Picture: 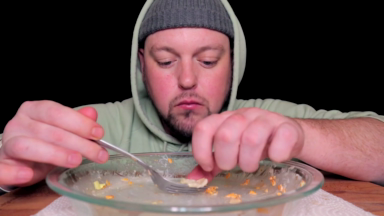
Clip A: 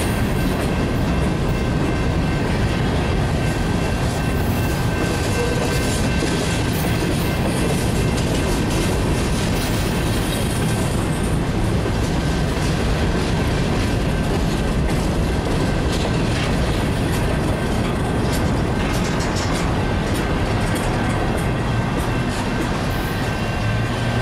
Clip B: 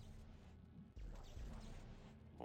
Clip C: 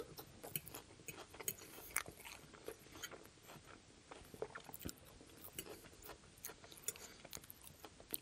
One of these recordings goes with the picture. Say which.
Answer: C